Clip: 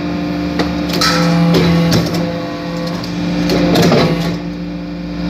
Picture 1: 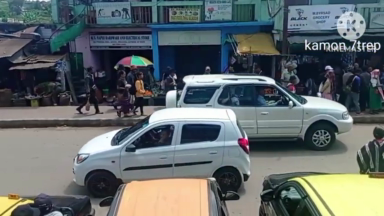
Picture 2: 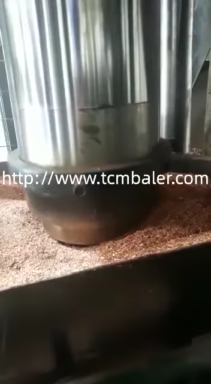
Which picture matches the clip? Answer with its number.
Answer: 2